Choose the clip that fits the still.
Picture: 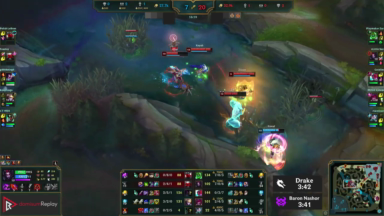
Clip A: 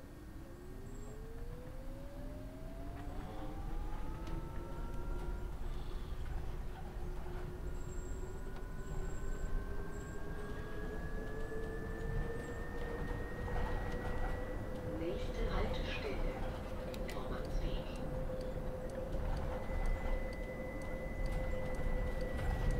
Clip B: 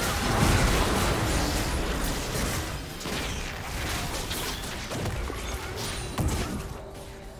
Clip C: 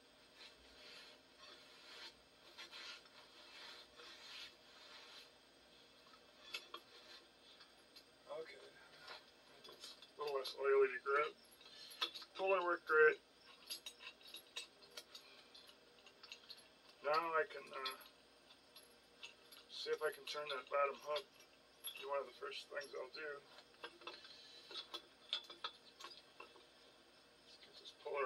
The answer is B